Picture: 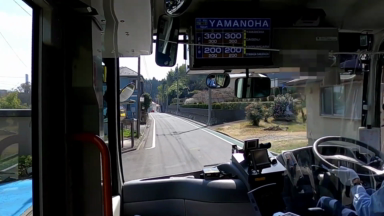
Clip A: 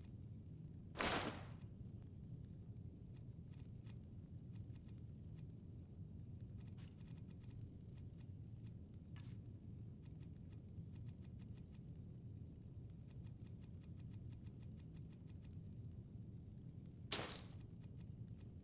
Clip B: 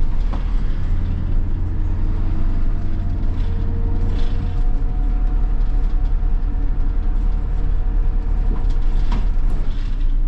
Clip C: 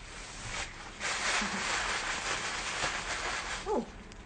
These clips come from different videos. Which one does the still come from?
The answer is B